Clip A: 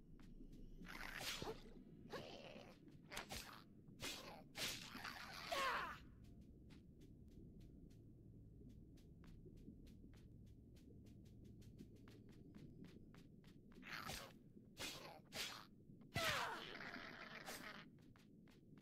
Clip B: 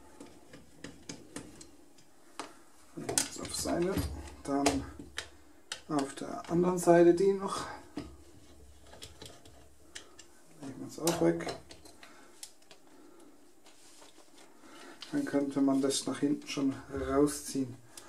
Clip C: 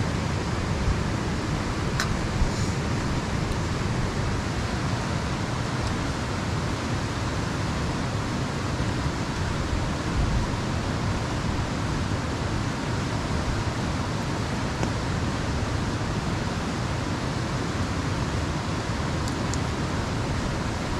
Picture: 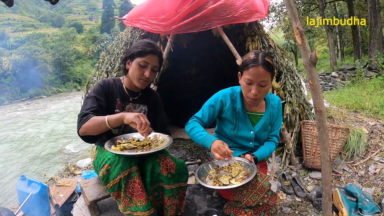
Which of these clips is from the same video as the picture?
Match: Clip C